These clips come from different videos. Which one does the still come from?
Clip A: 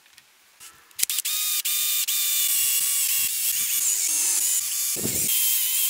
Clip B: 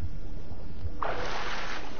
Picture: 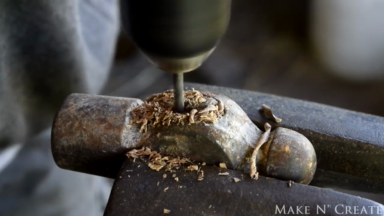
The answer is A